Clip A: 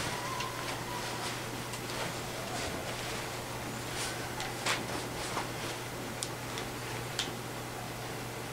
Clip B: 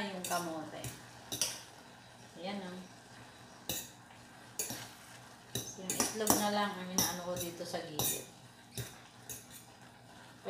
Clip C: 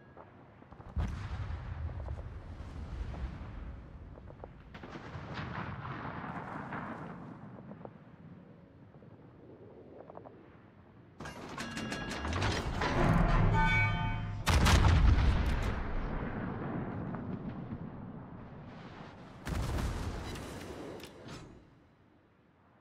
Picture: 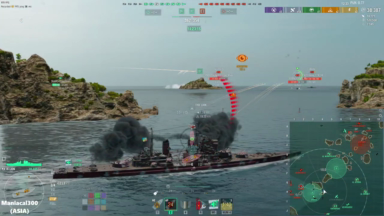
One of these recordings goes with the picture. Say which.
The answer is C